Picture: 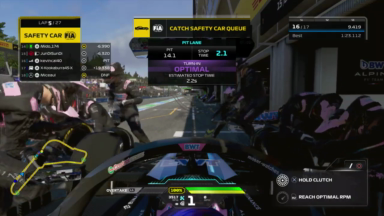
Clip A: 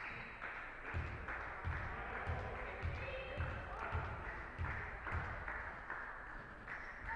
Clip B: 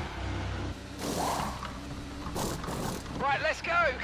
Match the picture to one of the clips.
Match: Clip B